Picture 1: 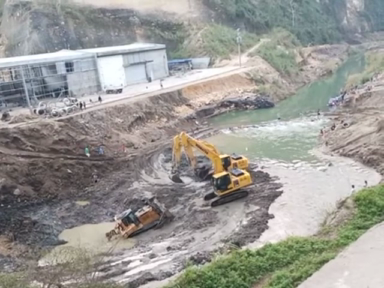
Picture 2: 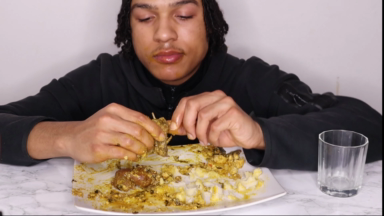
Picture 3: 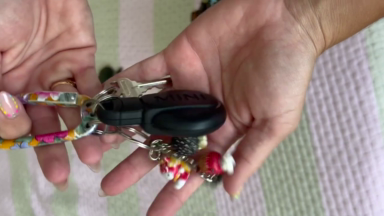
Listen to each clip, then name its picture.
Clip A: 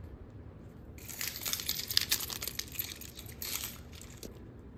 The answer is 3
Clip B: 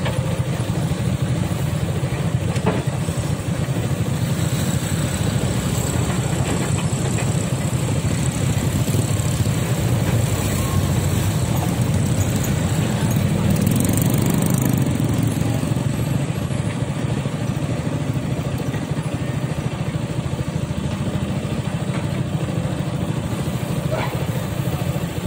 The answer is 1